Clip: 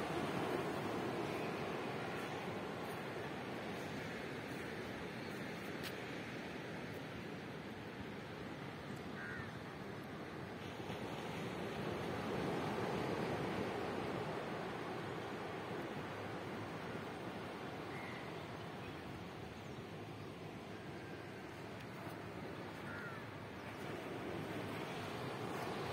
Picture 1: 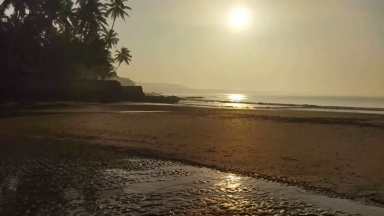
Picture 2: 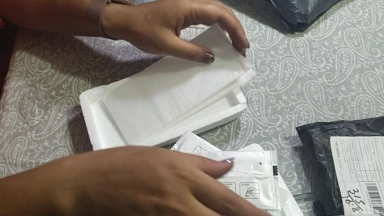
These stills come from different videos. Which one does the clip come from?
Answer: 1